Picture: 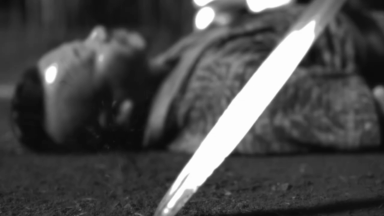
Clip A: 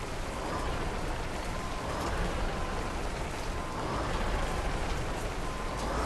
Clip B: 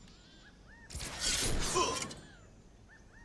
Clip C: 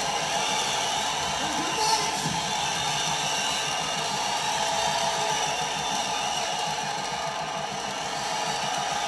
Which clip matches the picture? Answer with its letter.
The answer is B